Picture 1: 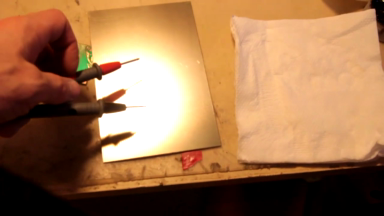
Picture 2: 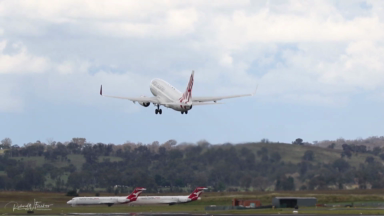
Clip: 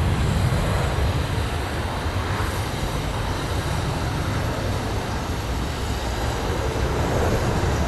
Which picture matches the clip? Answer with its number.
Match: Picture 2